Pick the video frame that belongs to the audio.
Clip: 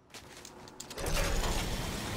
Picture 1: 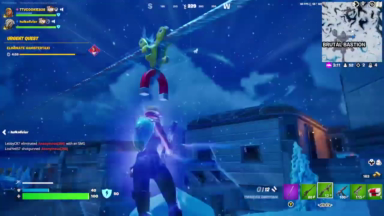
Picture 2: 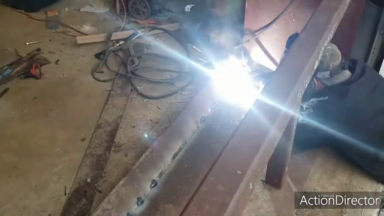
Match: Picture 1